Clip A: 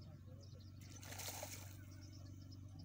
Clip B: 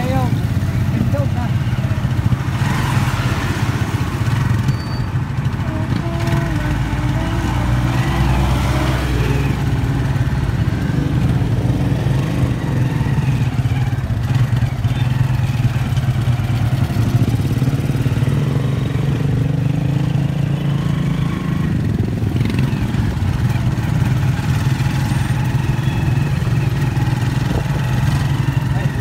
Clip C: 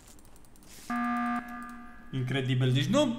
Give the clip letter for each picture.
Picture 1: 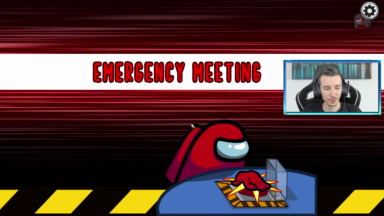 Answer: C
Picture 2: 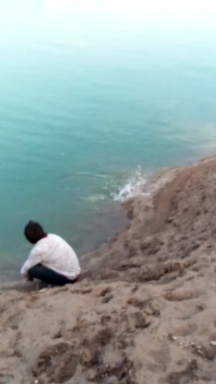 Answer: A